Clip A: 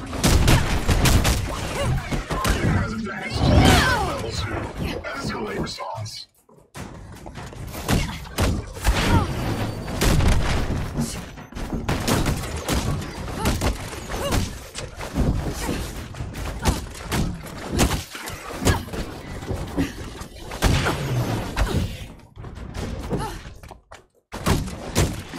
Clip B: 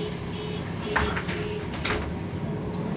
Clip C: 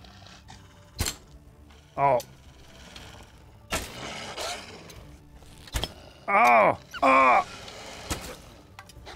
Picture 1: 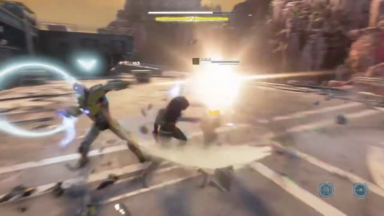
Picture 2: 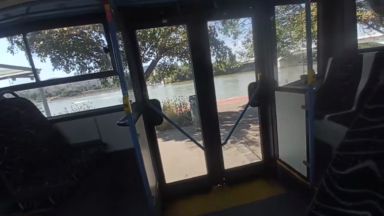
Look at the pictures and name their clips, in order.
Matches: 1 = A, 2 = B